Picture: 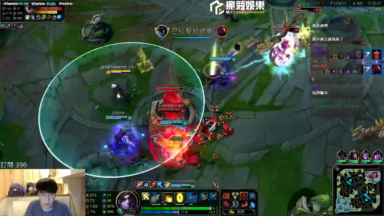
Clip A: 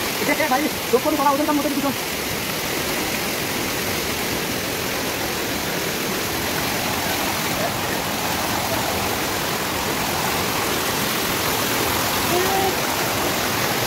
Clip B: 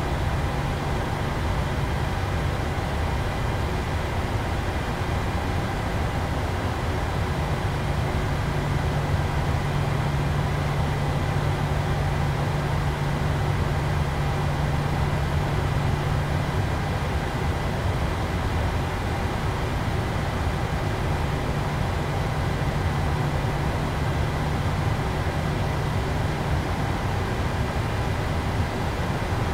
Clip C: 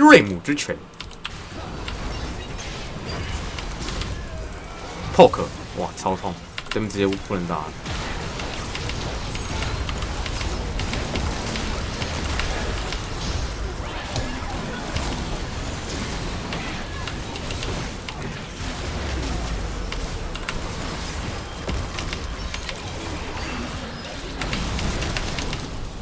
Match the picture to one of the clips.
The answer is C